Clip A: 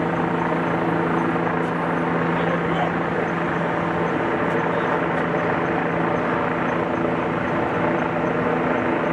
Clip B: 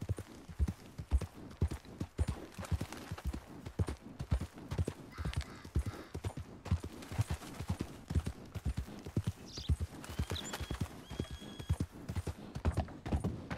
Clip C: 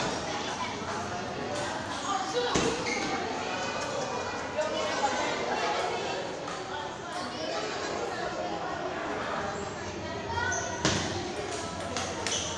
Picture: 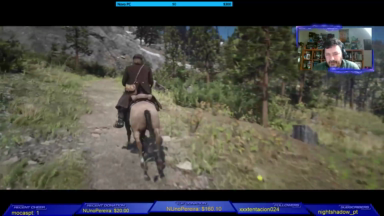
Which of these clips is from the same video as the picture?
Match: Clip B